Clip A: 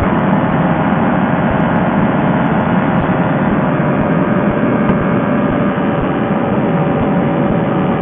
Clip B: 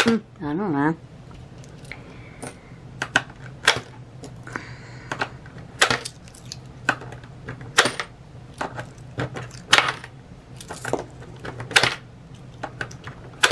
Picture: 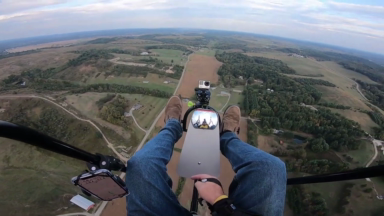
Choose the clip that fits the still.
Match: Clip A